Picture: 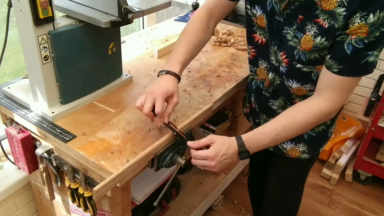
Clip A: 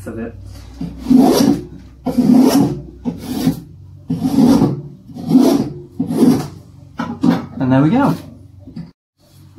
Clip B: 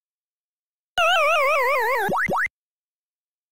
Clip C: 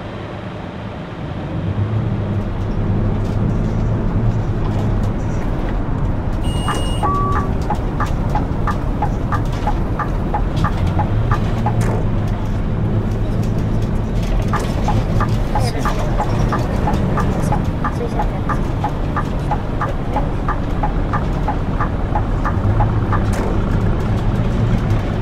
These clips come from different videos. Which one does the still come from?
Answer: A